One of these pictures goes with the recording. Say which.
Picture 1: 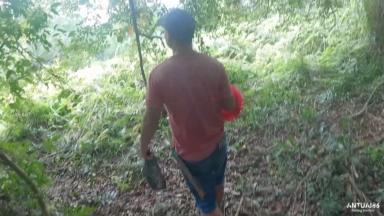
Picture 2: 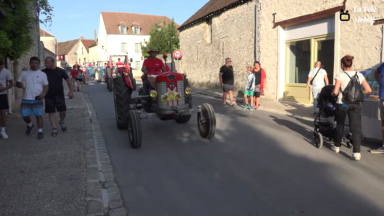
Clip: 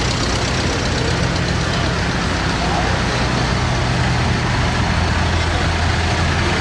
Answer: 2